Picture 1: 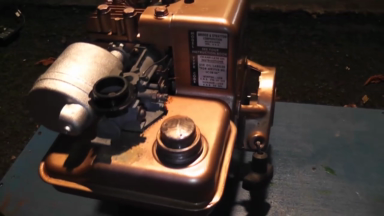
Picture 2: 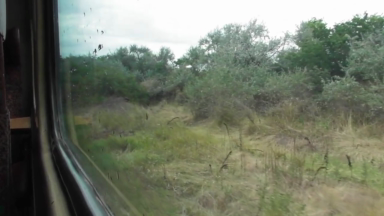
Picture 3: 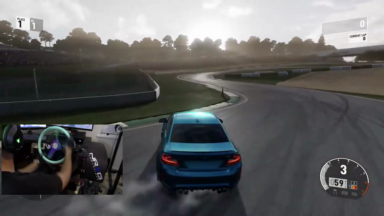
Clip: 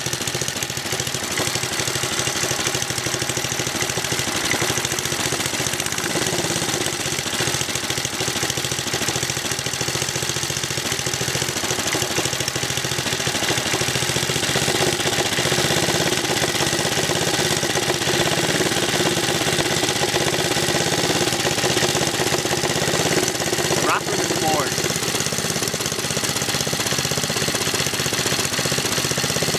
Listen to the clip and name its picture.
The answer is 1